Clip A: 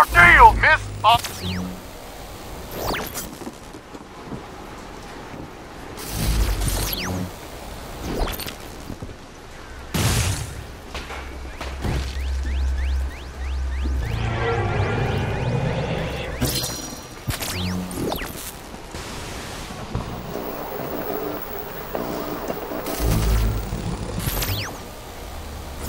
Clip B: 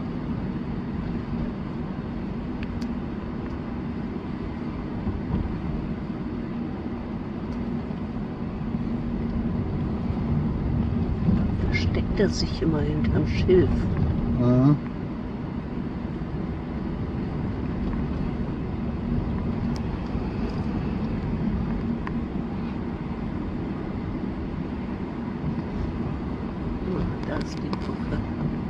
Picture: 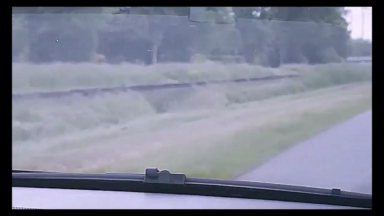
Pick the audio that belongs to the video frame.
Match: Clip B